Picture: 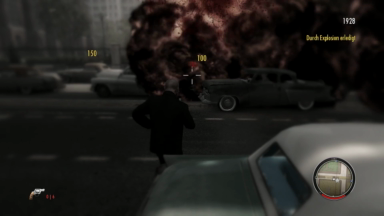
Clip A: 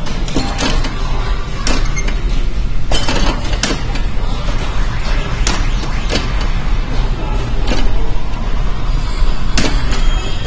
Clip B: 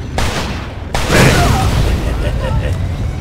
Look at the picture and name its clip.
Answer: B